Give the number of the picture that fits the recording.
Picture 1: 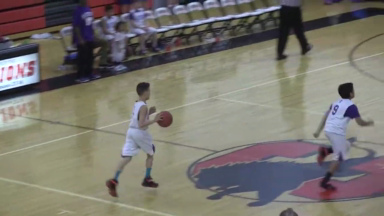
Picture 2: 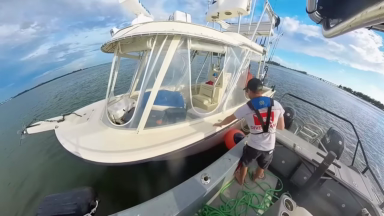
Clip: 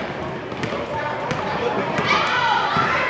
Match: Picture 1